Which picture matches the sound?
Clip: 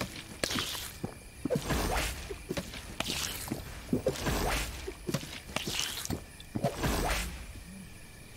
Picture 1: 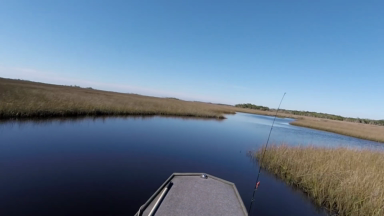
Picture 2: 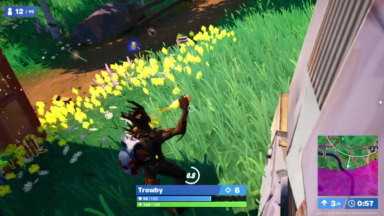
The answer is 2